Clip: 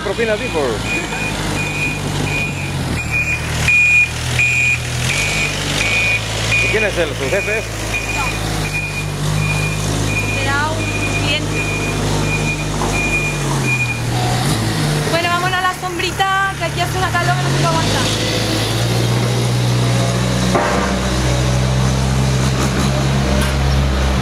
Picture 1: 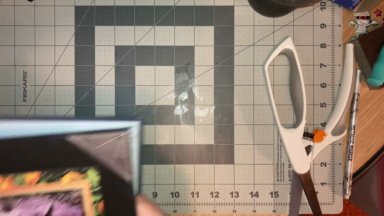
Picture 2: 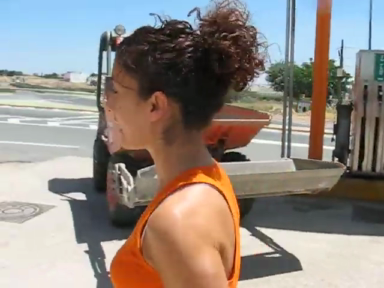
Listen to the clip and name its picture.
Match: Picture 2